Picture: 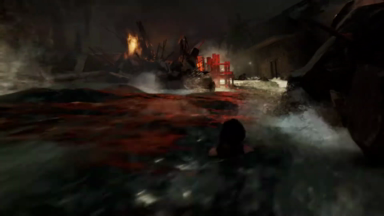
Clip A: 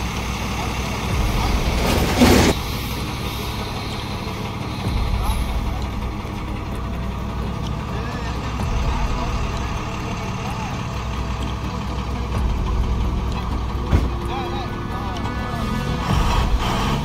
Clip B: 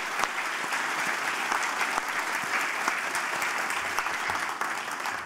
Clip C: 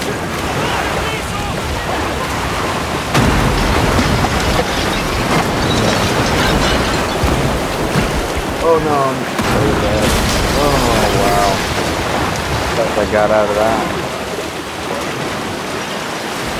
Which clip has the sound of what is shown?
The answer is C